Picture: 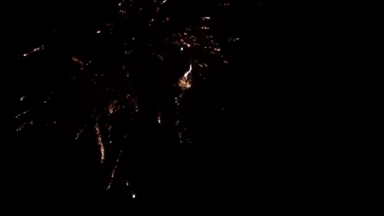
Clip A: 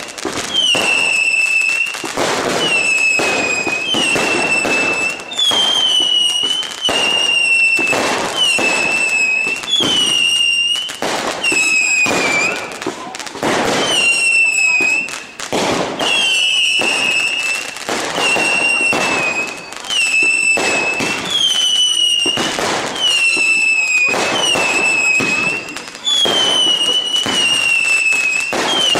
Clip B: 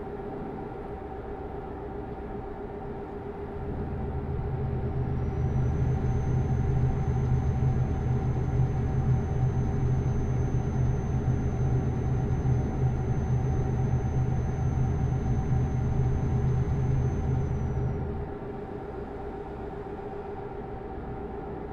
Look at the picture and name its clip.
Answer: A